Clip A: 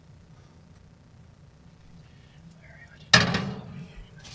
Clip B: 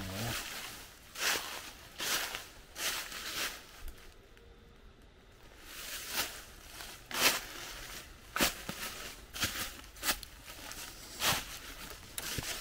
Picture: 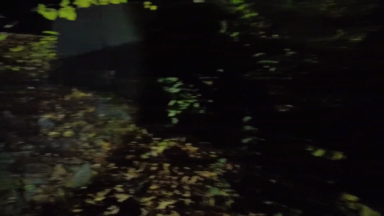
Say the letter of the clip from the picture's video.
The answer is B